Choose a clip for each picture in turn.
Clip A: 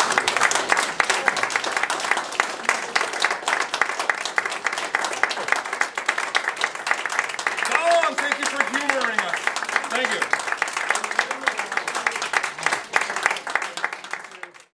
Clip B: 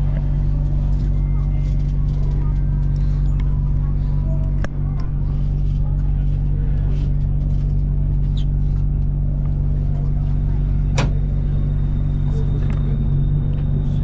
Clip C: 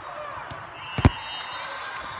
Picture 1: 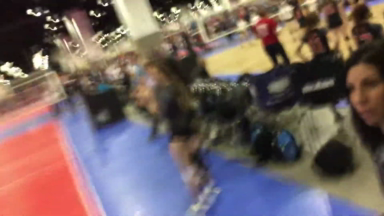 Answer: C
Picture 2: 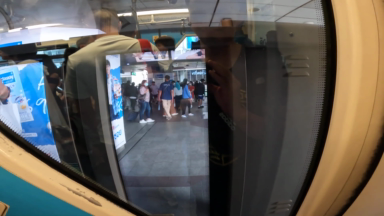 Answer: B